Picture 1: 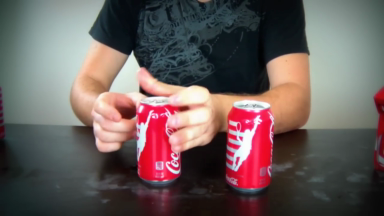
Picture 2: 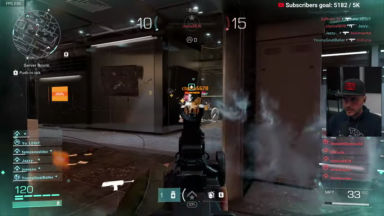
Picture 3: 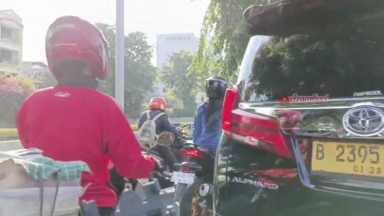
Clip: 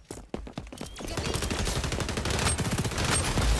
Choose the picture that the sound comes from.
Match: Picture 2